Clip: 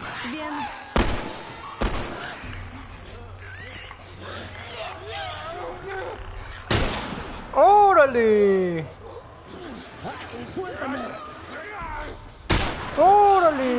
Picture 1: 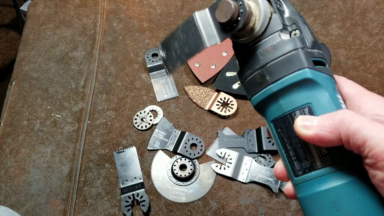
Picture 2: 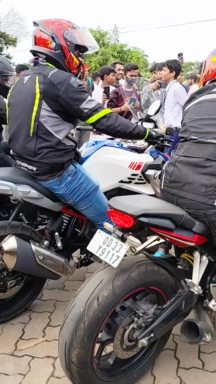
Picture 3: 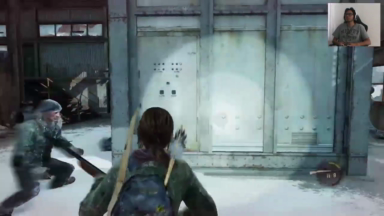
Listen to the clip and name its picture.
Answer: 3